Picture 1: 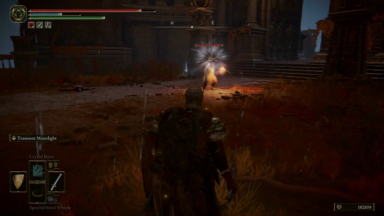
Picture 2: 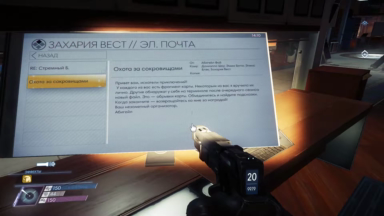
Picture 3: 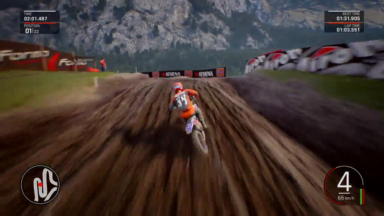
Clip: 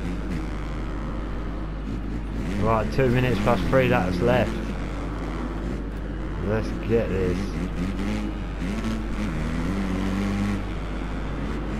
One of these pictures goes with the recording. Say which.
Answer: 3